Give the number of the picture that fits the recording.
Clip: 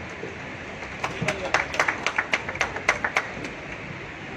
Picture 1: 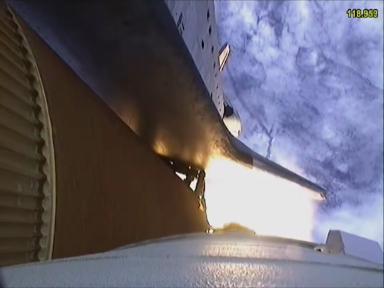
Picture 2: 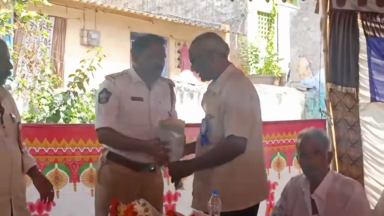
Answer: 2